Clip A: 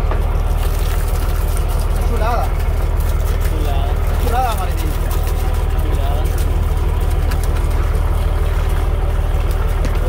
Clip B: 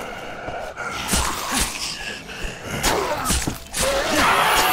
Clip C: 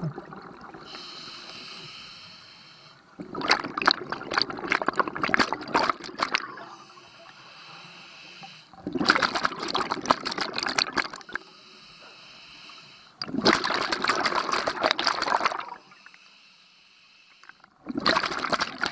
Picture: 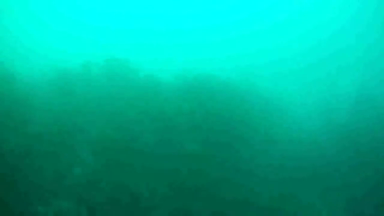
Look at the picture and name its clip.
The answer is C